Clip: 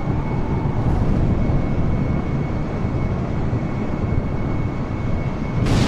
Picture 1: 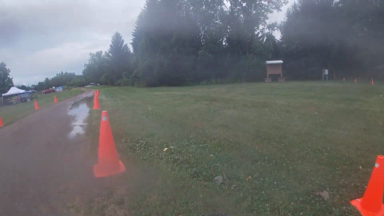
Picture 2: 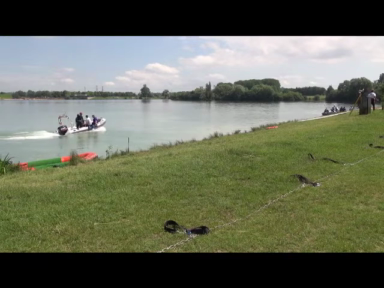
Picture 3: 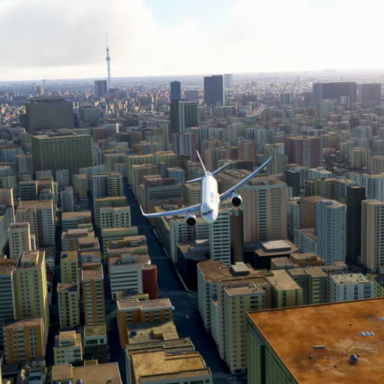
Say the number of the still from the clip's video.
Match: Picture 3